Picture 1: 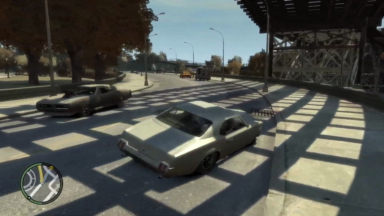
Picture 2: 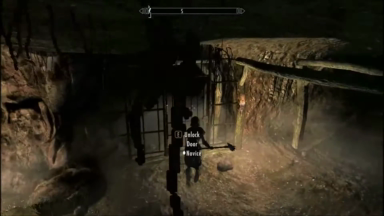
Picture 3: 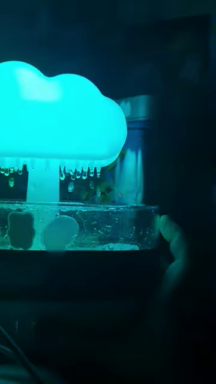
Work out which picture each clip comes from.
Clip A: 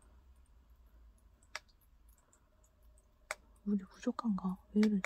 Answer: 3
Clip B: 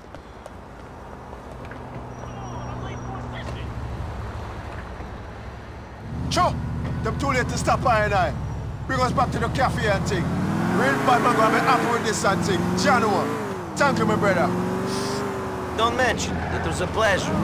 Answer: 1